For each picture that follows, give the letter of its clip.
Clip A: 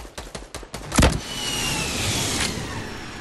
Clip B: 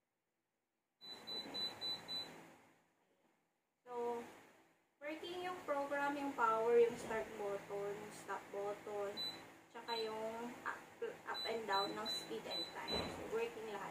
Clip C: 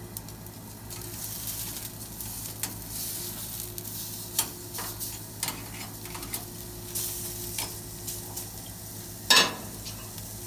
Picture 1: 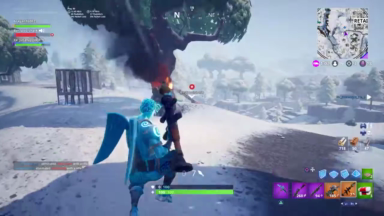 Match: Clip A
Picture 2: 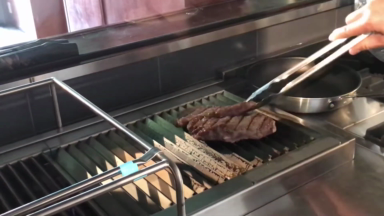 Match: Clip C